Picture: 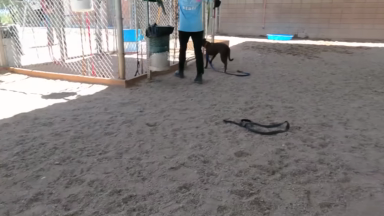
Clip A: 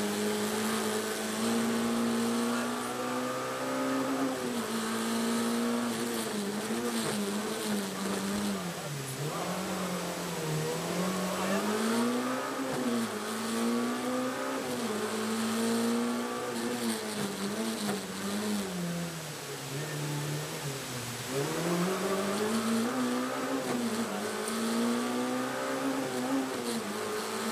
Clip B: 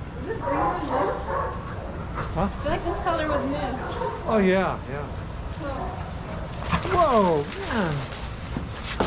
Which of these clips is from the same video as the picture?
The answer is B